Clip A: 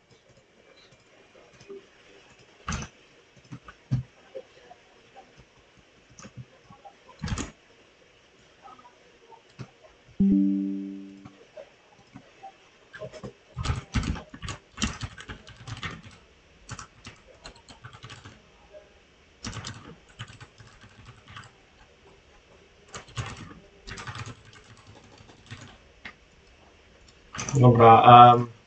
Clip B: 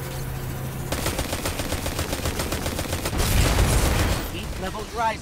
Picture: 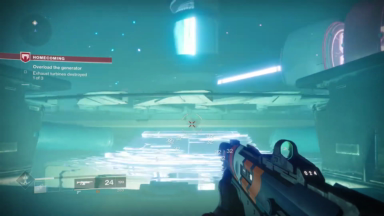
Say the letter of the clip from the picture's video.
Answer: B